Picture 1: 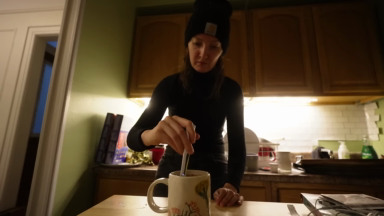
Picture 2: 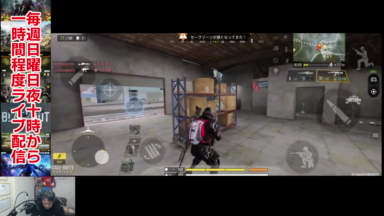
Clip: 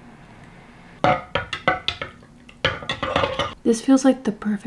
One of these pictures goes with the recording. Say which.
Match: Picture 1